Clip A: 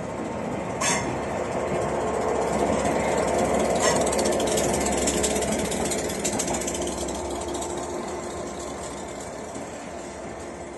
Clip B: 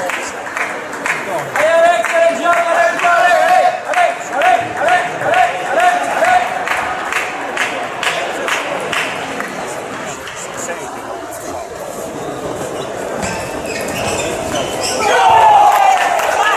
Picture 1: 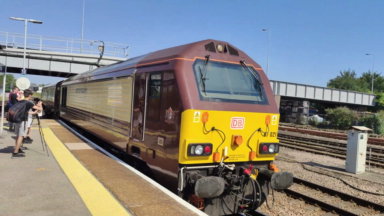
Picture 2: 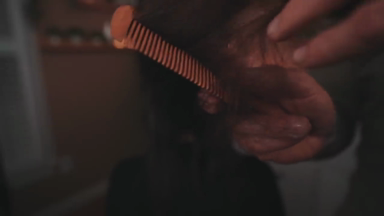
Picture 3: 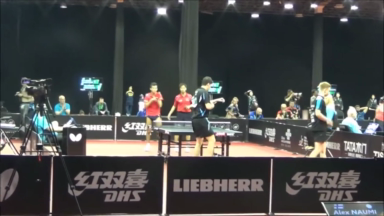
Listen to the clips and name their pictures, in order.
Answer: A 1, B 3